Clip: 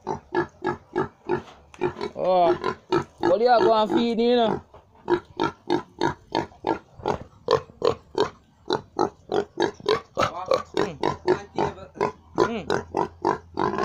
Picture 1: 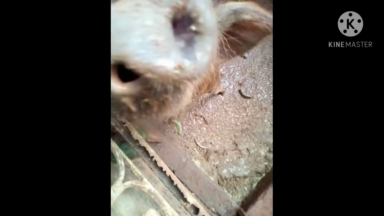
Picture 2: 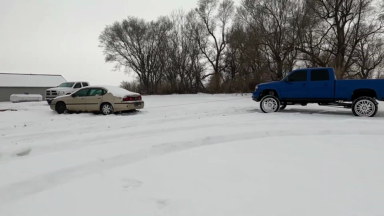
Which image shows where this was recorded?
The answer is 1